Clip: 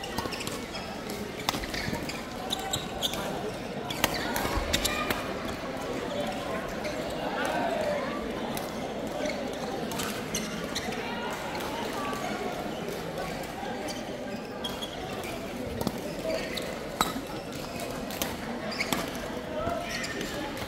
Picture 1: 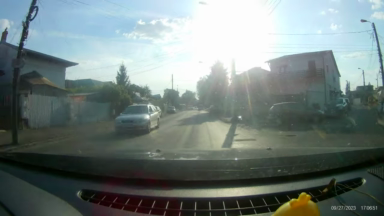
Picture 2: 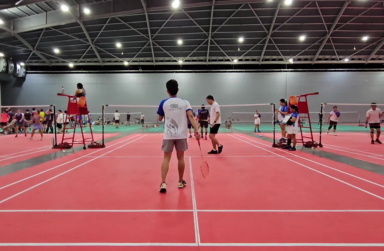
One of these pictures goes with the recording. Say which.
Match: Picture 2